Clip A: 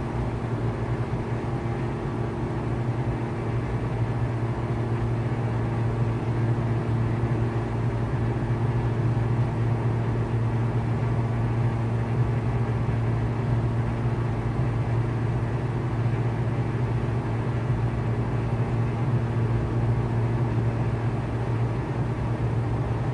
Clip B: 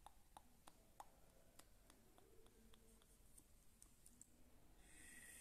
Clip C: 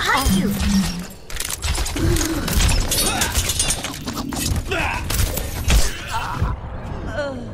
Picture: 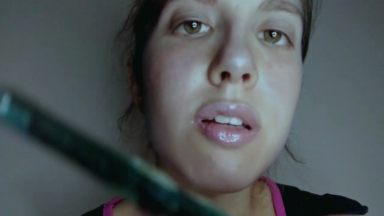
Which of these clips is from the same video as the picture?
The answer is B